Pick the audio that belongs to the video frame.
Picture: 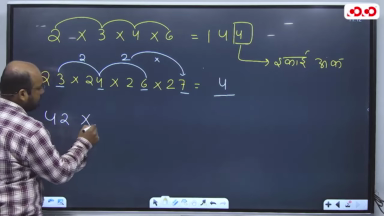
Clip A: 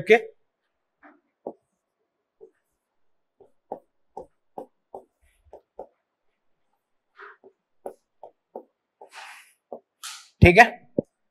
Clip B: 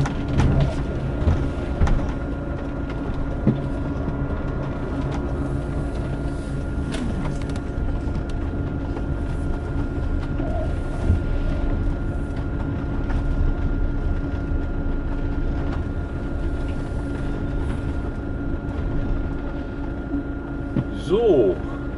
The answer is A